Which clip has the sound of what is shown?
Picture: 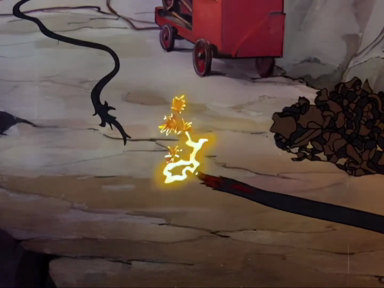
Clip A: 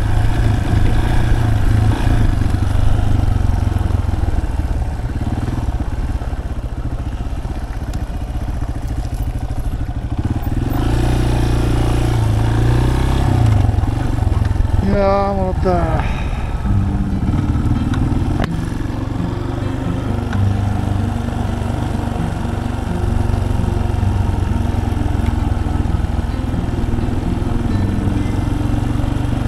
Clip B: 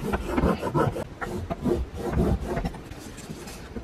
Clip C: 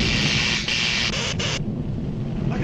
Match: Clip C